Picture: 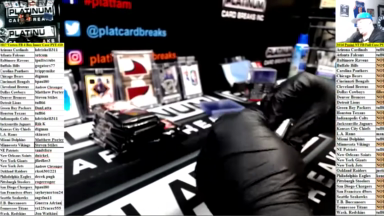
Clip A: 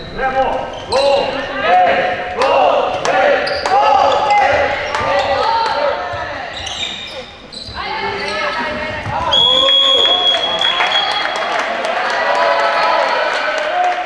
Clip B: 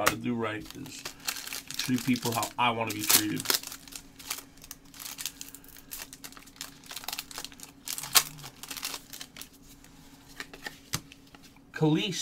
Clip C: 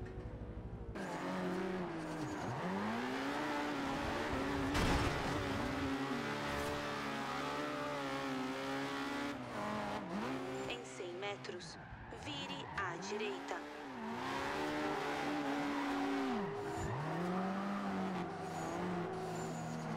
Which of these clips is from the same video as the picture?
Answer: B